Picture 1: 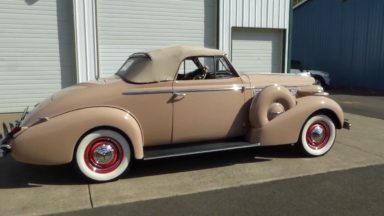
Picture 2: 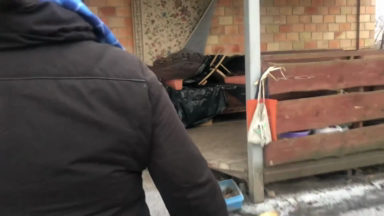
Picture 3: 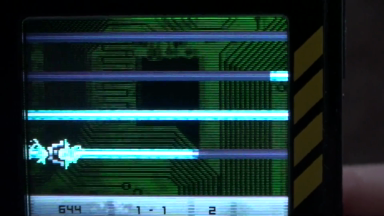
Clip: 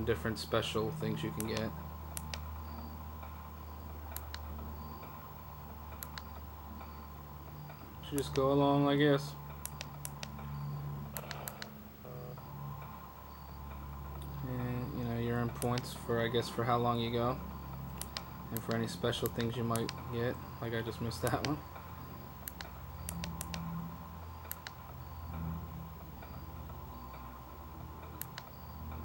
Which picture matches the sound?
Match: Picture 3